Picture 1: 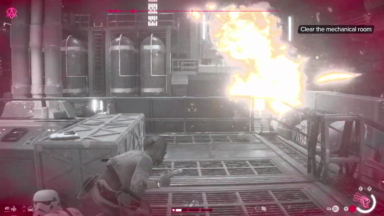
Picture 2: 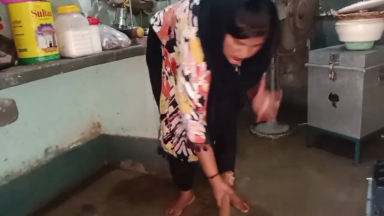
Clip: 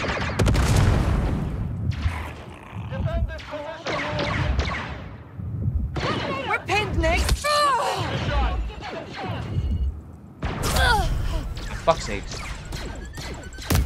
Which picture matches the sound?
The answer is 1